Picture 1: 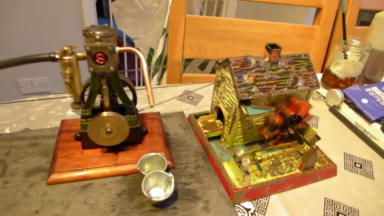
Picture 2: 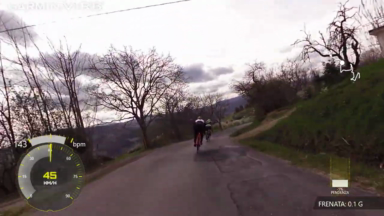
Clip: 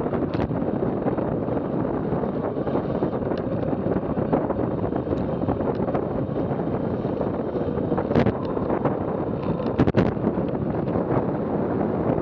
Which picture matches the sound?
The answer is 2